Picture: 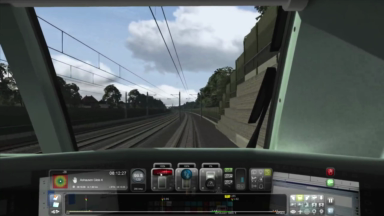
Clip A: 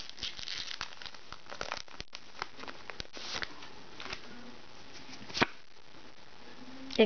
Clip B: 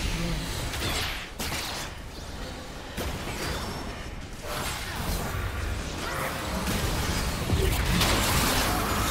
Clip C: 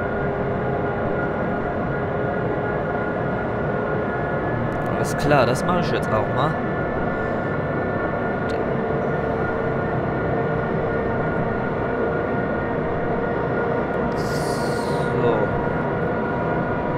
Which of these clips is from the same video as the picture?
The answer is C